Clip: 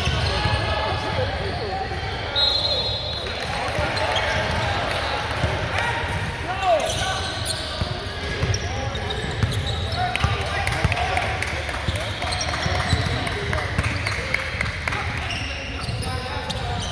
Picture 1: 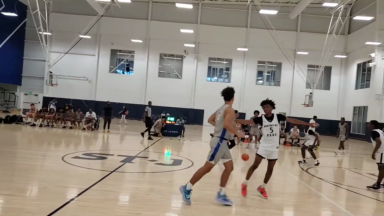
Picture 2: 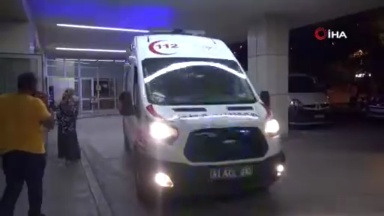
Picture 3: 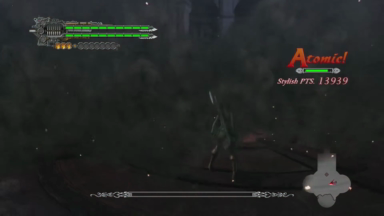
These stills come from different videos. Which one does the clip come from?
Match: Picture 1